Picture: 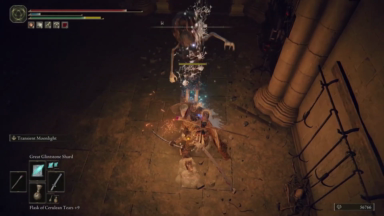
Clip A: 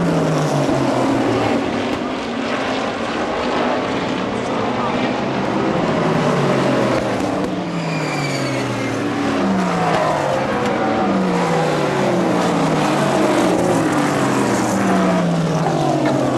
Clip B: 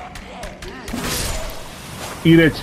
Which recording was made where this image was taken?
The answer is B